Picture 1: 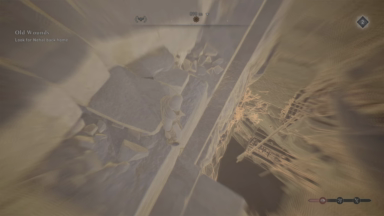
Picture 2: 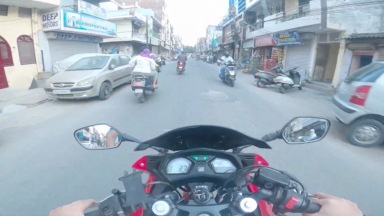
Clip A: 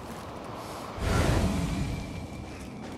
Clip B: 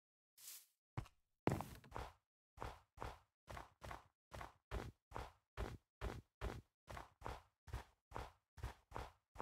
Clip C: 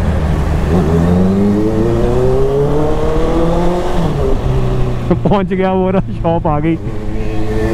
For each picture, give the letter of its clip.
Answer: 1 A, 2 C